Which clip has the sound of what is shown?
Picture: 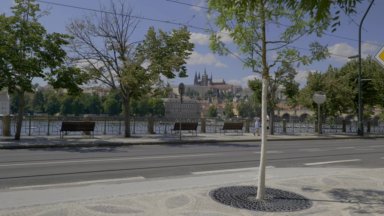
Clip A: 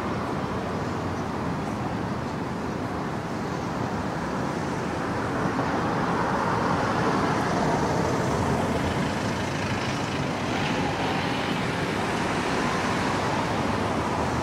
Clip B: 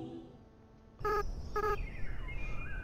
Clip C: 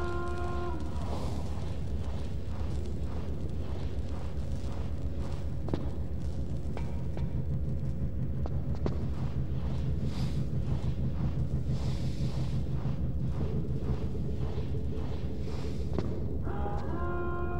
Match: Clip A